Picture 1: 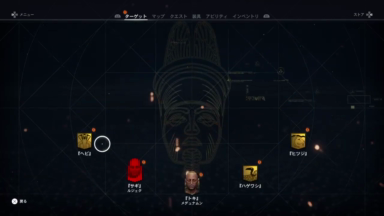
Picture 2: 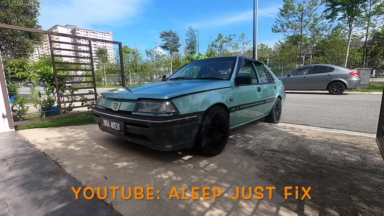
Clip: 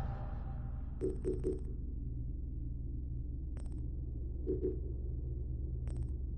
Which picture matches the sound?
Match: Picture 1